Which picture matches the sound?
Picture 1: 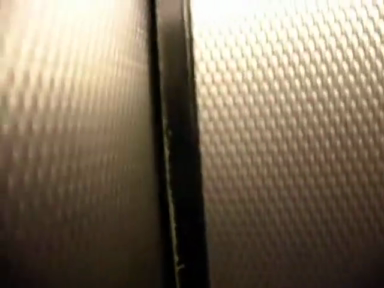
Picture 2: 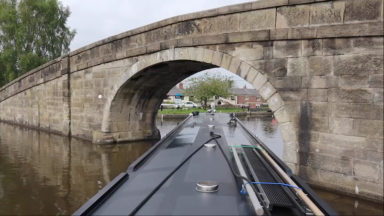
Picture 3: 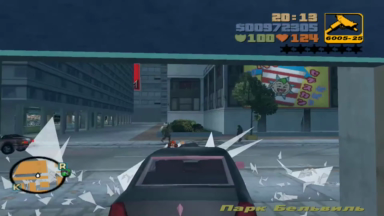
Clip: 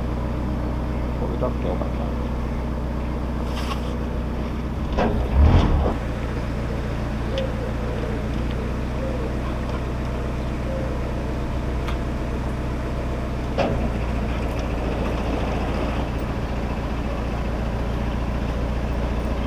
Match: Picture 2